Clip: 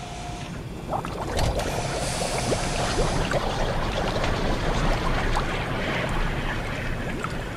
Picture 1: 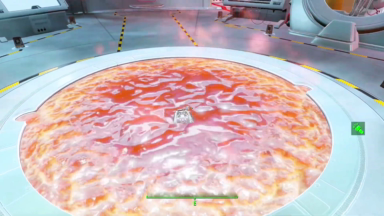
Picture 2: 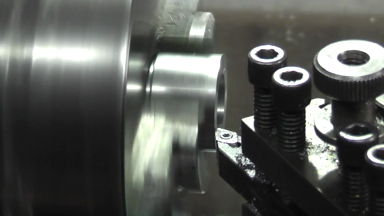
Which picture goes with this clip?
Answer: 1